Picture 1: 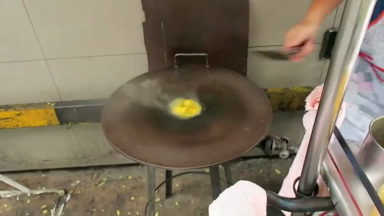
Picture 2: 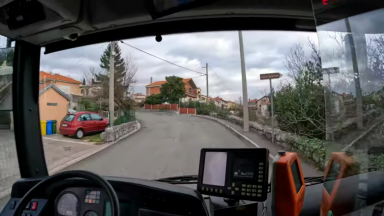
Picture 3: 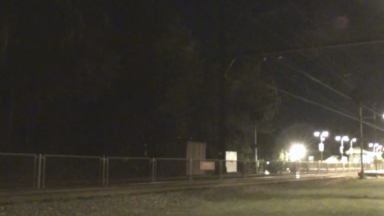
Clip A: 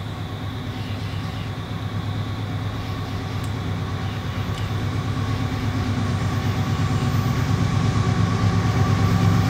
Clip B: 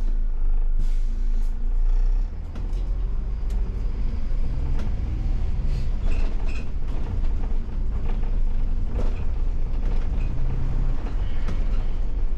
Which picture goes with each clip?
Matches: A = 3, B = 2